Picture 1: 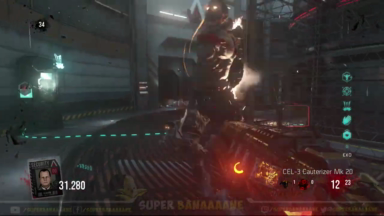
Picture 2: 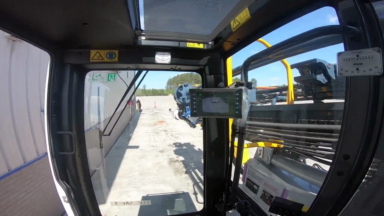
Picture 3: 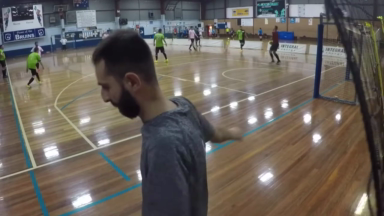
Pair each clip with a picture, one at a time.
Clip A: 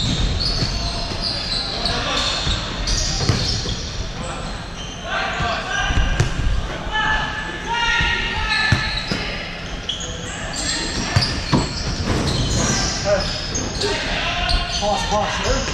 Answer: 3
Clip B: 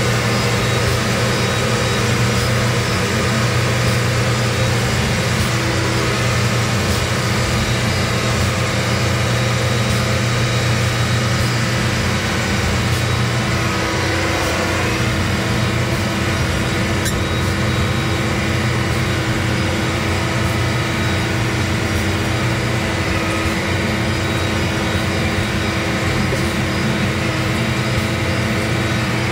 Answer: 2